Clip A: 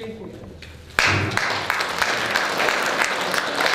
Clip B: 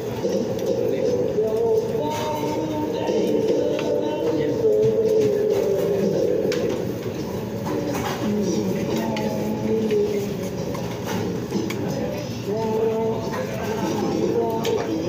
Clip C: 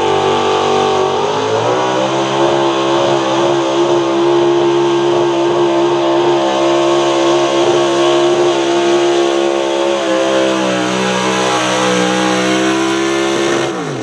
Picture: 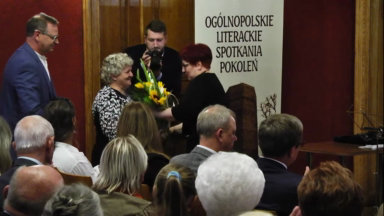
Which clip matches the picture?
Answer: A